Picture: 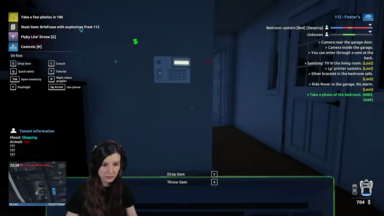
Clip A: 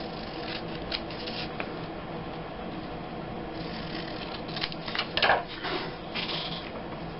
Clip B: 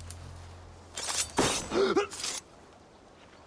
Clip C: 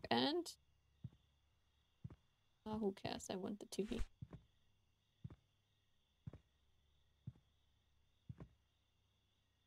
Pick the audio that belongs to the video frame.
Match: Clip C